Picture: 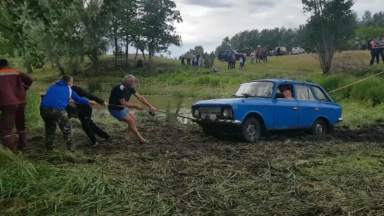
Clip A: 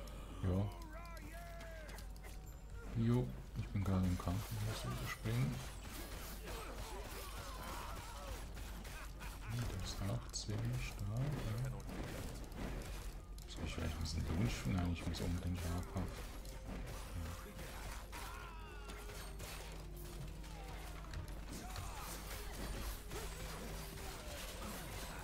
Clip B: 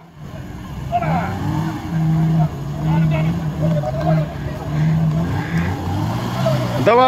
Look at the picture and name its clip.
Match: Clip B